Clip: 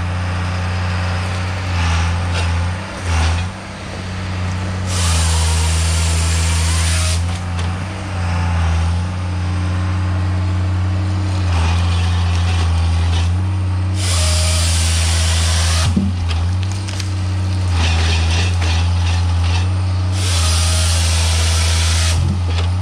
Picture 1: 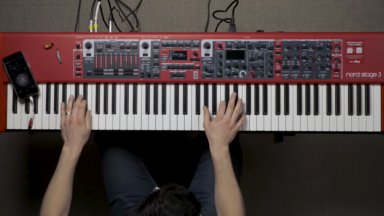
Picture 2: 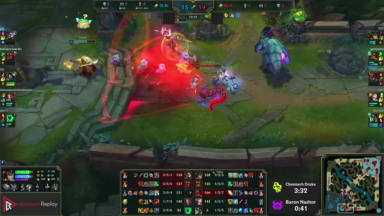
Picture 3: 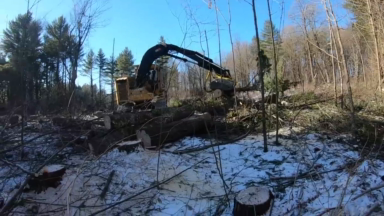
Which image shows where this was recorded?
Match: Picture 3